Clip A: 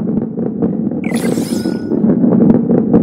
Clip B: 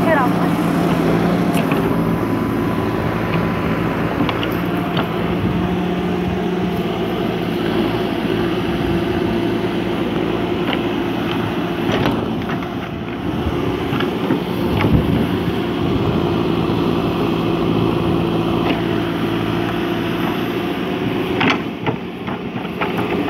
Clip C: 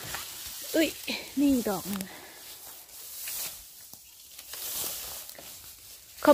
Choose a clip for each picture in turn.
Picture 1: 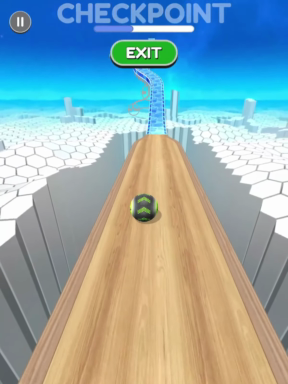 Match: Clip A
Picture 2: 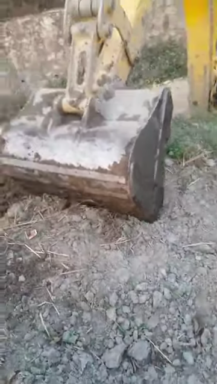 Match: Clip B